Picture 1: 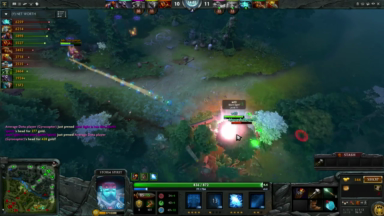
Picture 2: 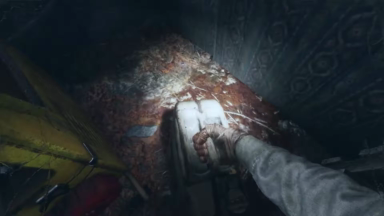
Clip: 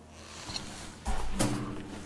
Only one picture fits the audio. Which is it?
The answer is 2